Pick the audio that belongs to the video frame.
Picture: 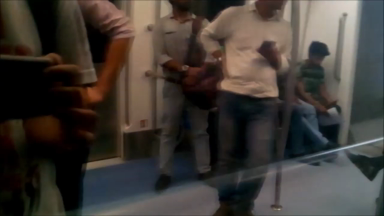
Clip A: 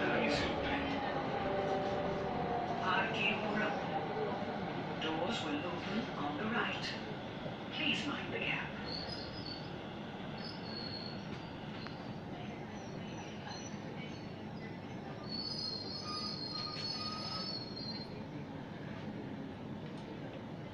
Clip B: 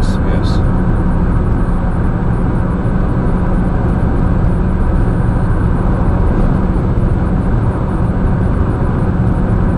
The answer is A